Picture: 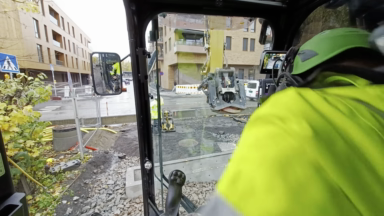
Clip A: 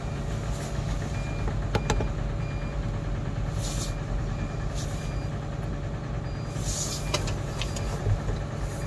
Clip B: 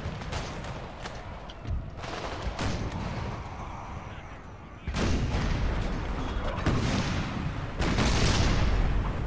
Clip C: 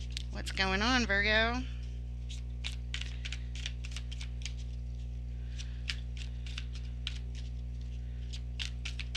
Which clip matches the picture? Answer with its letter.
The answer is A